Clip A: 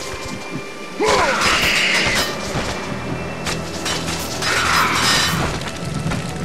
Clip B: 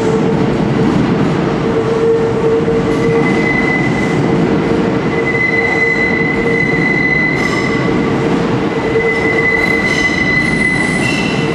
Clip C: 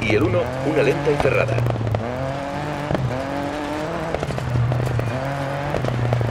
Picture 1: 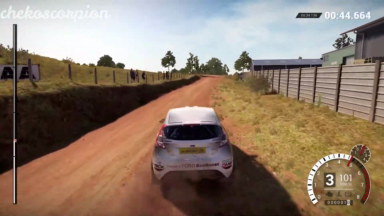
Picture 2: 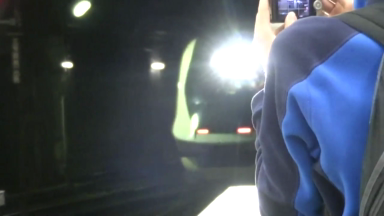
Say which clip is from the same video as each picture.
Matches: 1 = C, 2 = B